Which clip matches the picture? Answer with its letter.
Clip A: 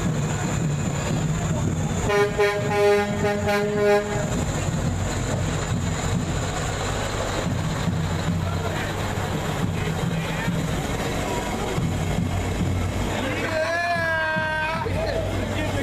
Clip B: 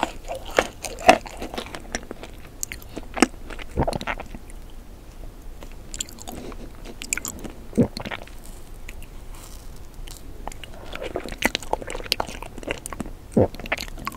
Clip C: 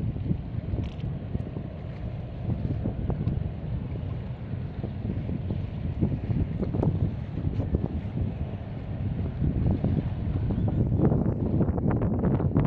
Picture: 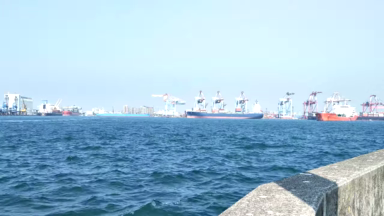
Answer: C